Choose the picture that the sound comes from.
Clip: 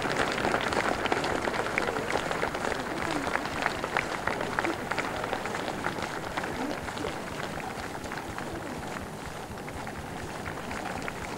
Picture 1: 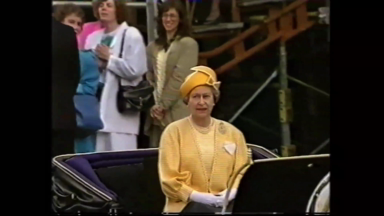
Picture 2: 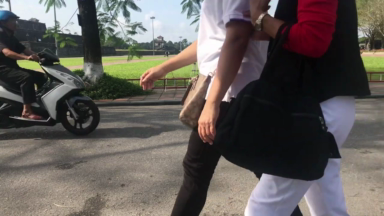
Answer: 1